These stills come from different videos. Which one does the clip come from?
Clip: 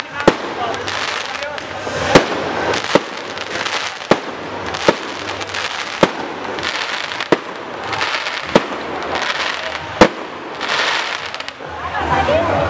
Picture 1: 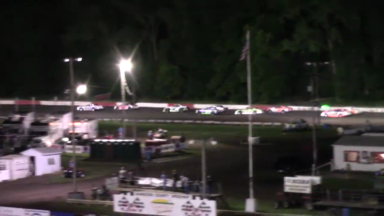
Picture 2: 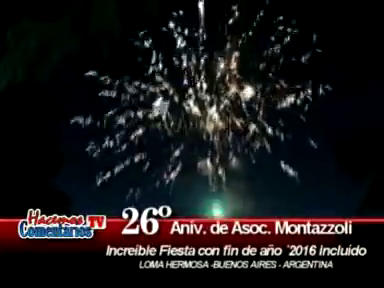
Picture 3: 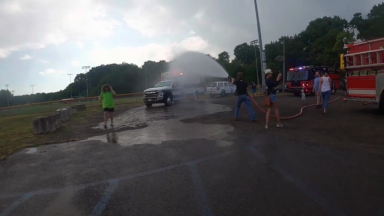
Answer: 2